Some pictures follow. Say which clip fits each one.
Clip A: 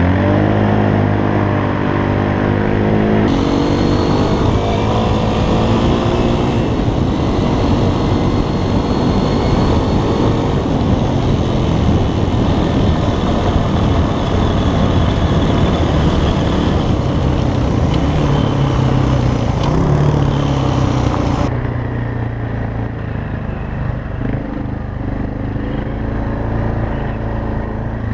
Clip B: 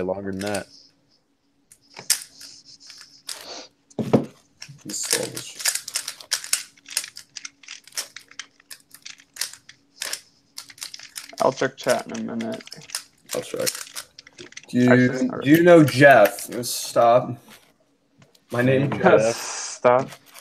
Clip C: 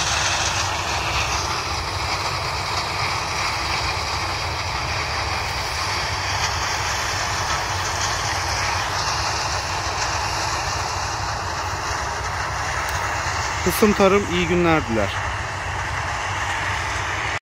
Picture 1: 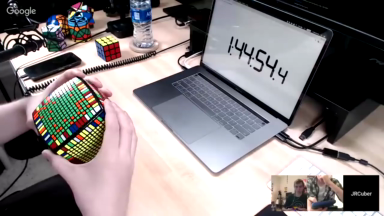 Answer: B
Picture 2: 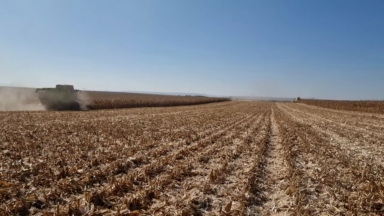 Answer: C